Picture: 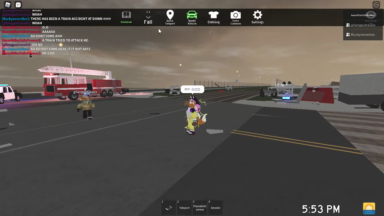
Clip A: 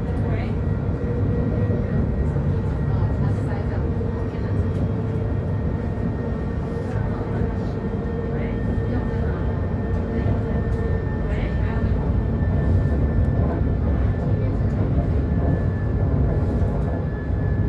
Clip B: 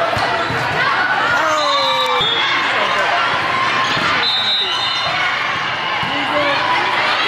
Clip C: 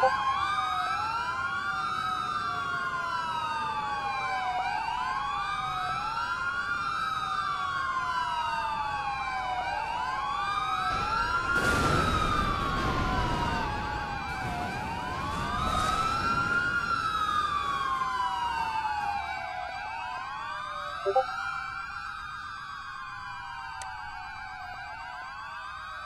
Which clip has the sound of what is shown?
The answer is C